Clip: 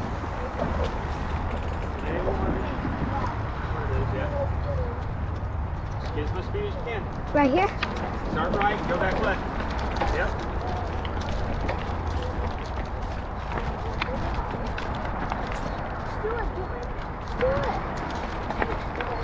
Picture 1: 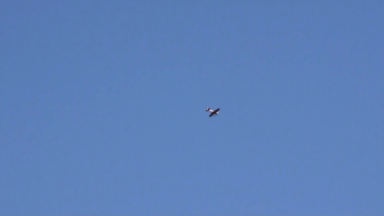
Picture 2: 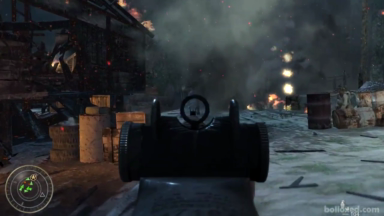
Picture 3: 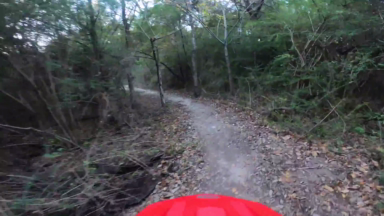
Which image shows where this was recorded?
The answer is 3